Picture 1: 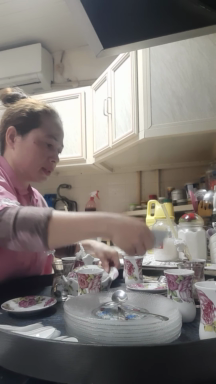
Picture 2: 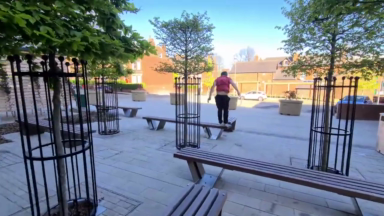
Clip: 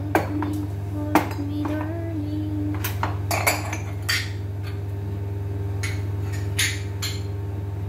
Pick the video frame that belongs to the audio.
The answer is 1